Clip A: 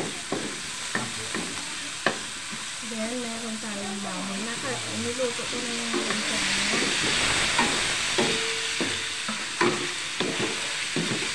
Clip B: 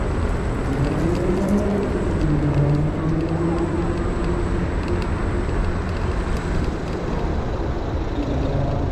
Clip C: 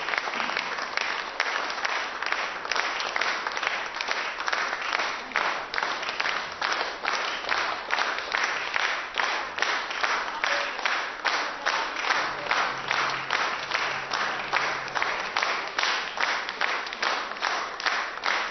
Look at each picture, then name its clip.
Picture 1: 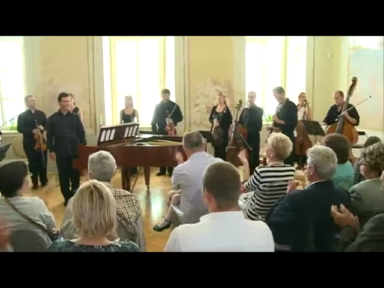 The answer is C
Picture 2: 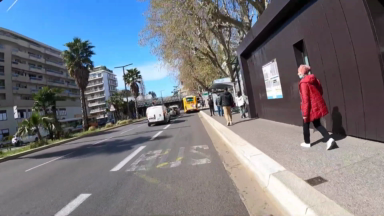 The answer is B